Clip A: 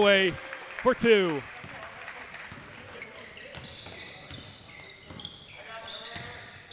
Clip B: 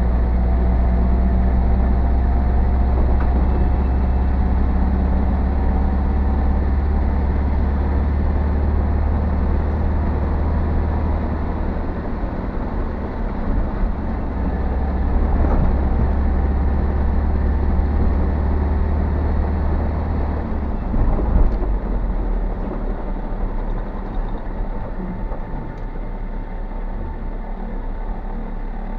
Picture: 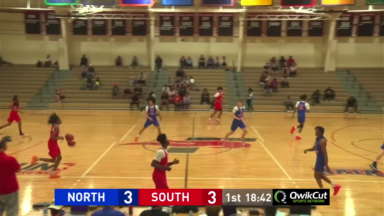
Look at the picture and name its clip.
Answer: A